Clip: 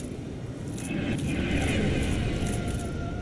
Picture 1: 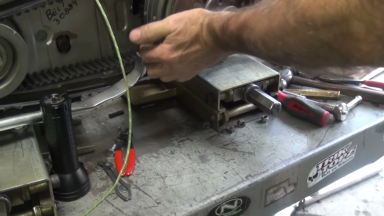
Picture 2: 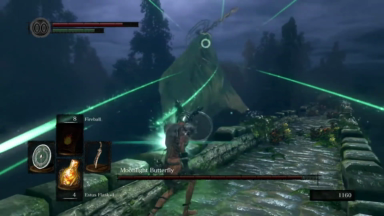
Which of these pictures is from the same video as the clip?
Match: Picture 2